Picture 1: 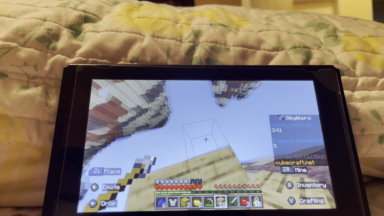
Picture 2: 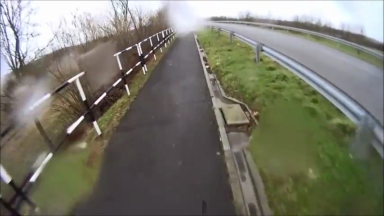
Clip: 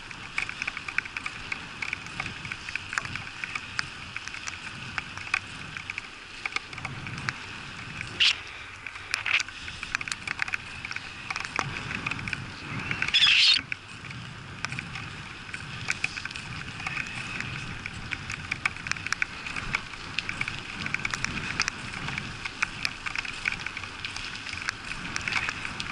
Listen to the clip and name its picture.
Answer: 2